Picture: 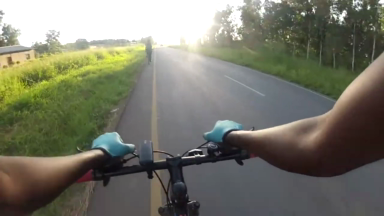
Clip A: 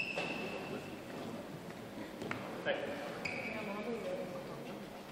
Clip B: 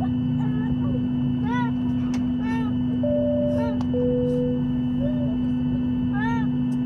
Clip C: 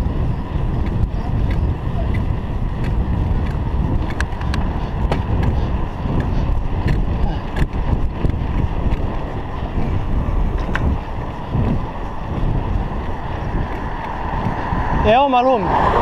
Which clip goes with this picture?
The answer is C